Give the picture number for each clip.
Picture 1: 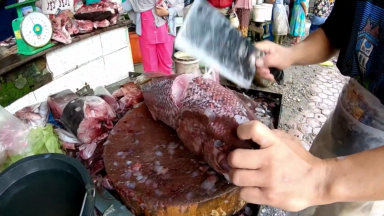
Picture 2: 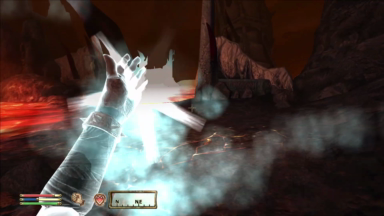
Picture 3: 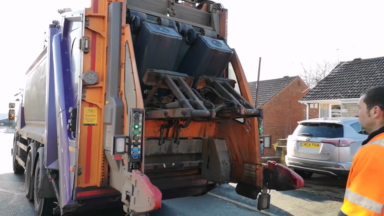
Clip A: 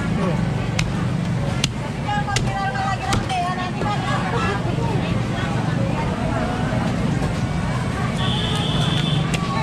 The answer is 1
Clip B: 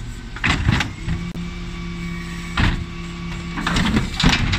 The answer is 3